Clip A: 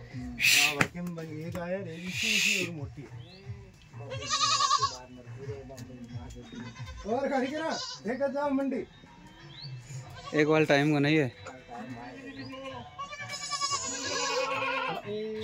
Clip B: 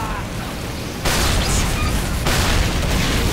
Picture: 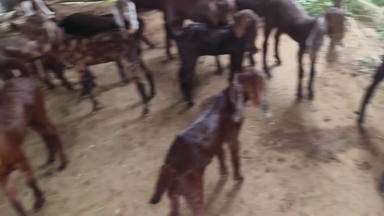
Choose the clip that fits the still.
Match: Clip A